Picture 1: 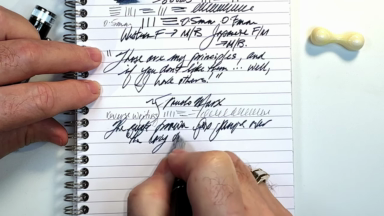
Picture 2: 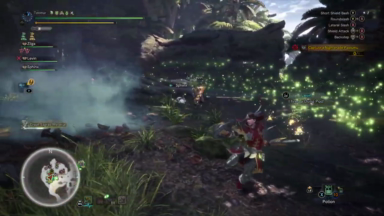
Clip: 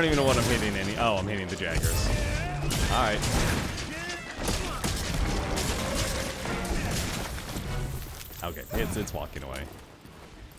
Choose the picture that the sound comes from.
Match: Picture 2